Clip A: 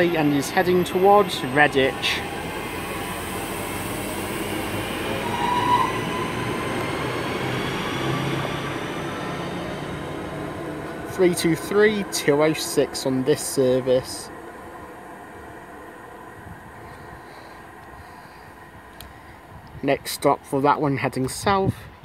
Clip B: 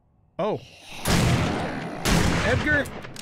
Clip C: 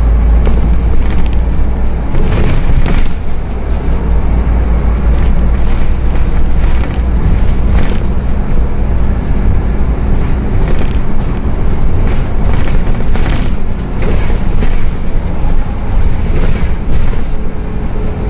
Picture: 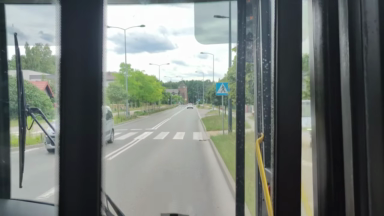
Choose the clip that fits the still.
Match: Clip C